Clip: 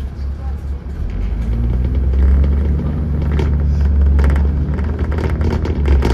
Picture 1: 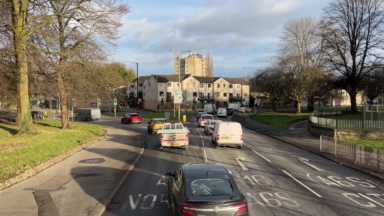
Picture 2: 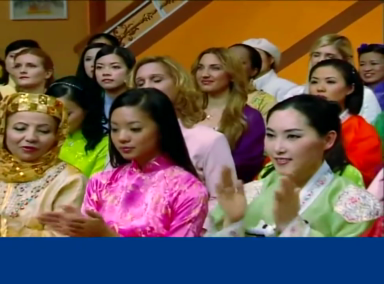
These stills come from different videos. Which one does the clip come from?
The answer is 1